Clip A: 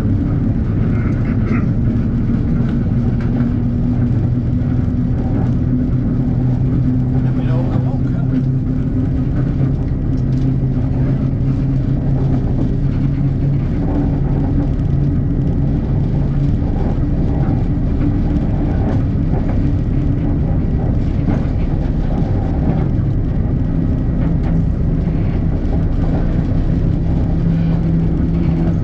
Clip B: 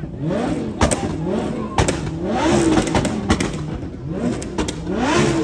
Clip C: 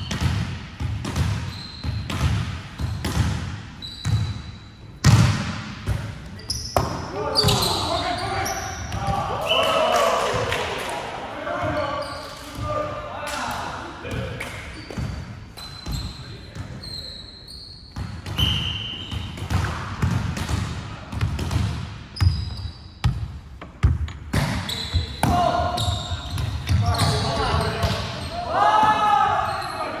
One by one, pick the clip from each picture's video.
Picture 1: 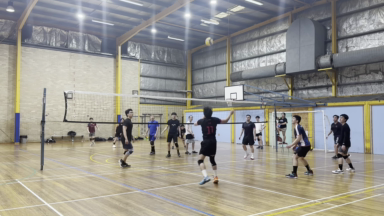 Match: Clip C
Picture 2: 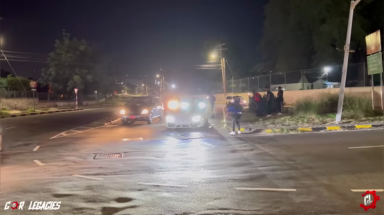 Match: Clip B